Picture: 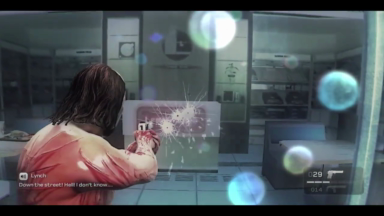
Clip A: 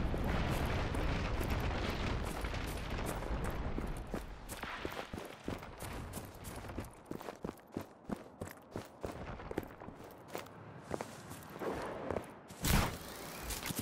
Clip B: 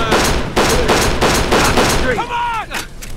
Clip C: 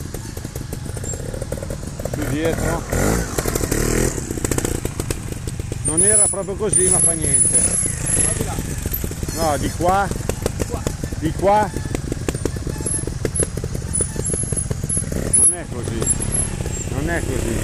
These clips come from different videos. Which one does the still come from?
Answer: B